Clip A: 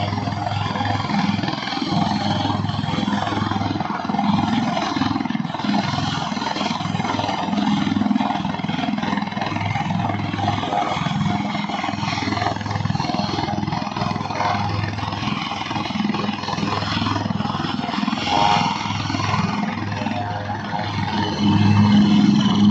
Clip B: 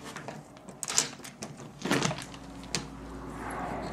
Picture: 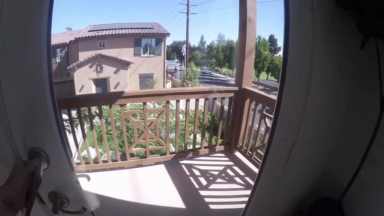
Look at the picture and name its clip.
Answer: B